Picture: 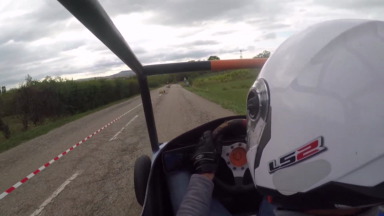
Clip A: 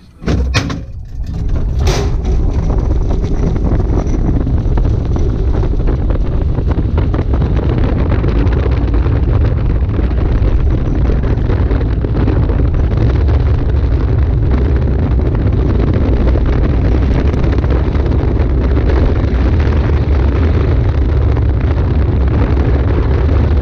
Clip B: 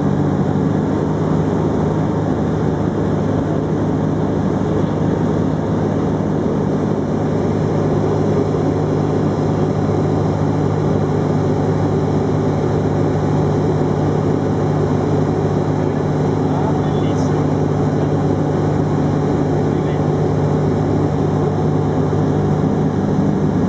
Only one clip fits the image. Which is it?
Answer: A